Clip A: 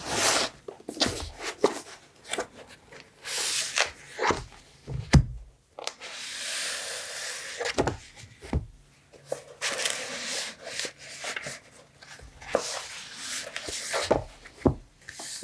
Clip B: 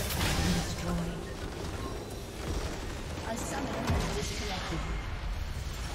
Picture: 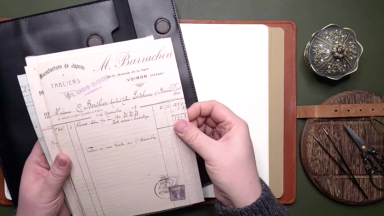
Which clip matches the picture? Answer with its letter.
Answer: A